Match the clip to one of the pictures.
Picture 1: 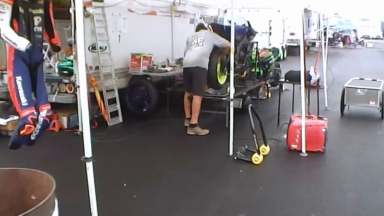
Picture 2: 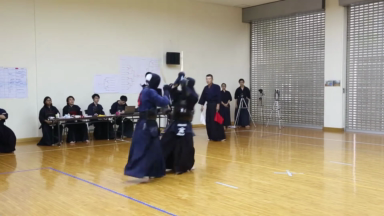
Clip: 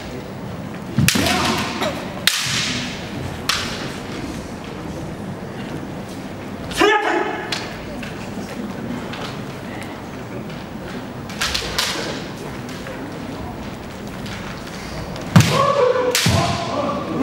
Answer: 2